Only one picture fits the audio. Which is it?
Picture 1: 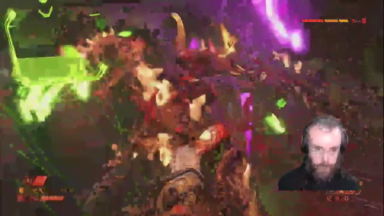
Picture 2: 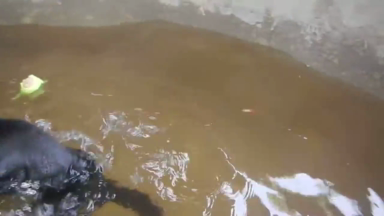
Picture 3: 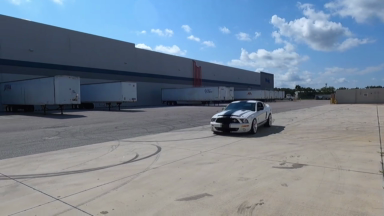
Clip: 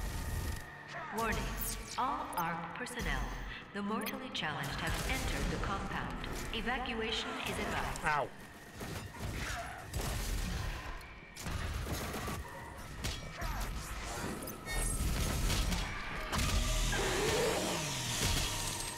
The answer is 1